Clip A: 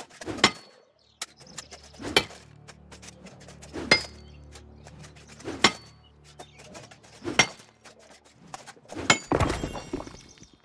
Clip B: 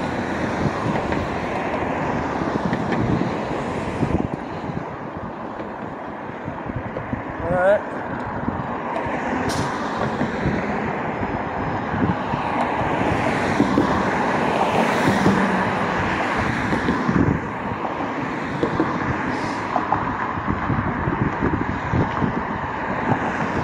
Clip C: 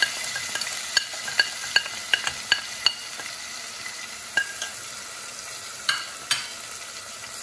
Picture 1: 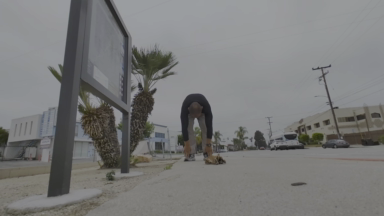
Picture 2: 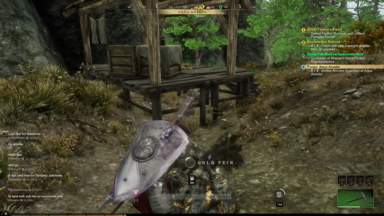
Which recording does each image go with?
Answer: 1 B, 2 A